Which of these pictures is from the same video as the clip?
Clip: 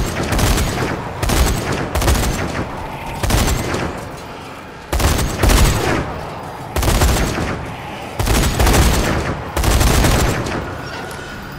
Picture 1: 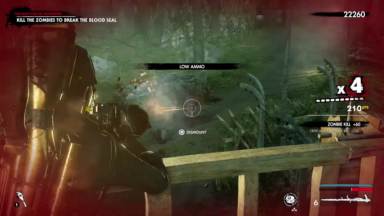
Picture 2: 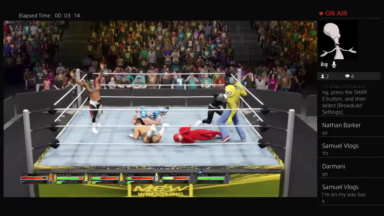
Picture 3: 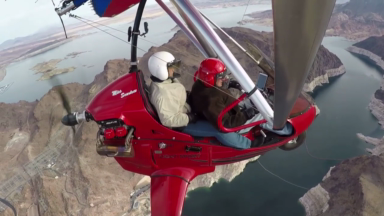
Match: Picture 1